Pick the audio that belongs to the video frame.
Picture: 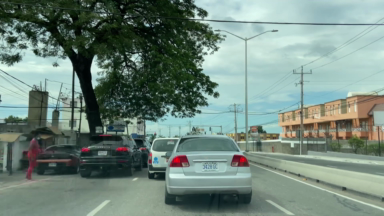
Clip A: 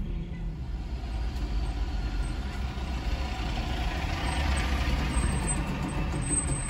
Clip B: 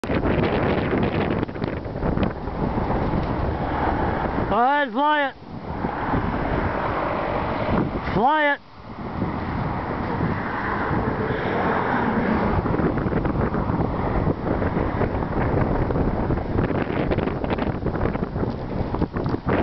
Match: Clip A